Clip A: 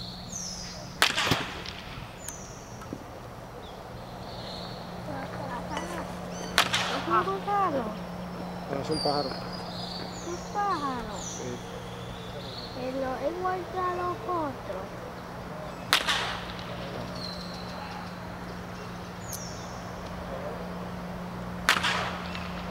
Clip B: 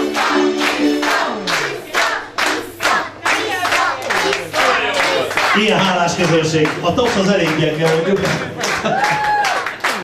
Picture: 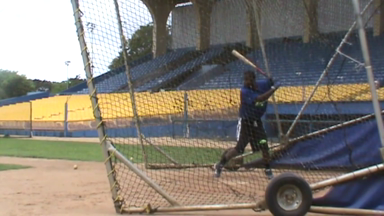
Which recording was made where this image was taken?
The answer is A